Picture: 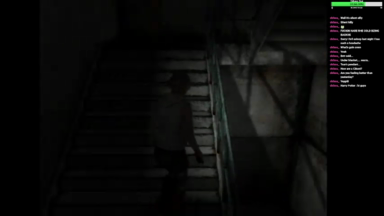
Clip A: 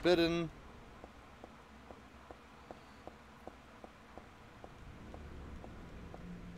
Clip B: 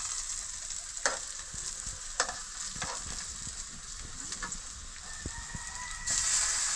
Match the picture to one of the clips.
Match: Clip A